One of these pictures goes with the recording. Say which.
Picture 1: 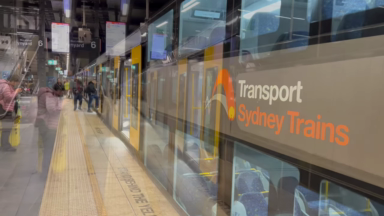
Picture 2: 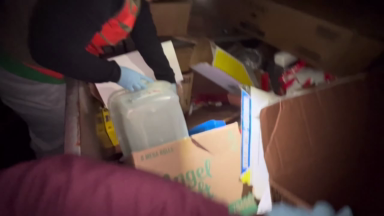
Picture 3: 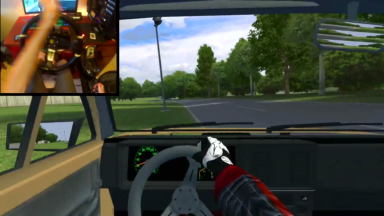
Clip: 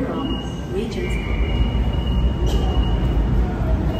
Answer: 1